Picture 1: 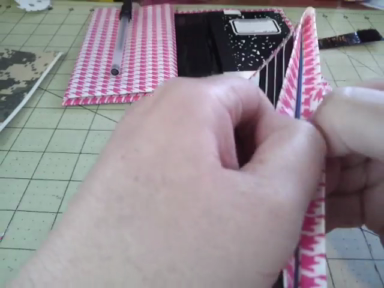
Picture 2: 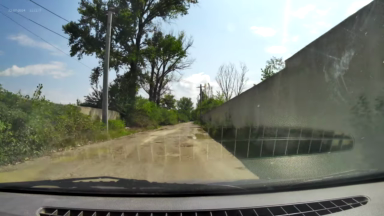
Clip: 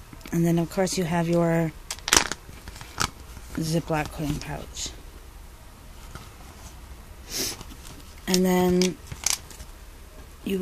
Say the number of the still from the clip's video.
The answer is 1